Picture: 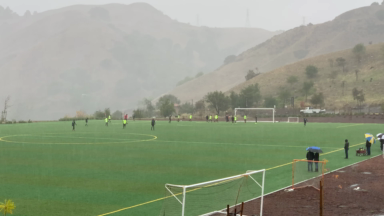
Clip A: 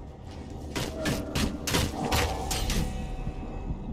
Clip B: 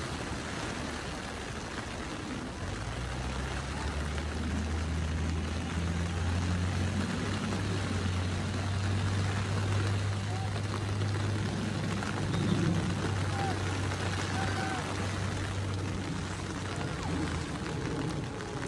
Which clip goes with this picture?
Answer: B